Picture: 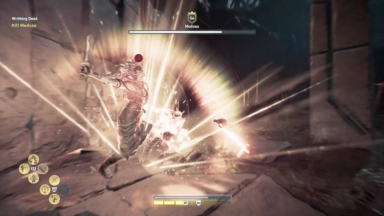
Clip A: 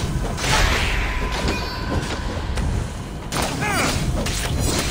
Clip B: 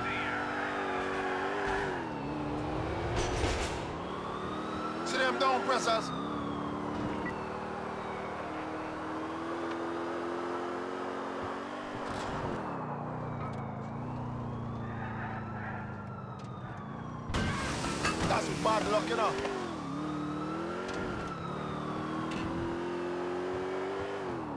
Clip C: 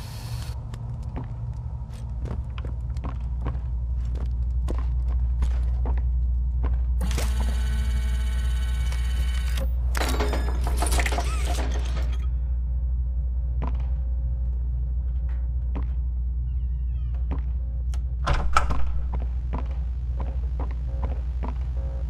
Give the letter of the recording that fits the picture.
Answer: A